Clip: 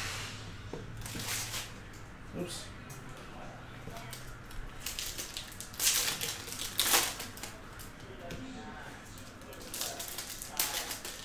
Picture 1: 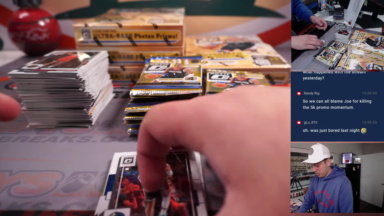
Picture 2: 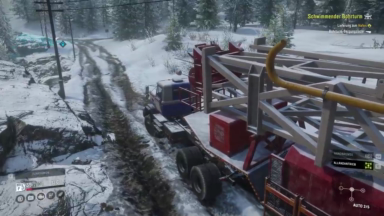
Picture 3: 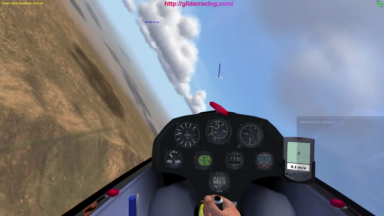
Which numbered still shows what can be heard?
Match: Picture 1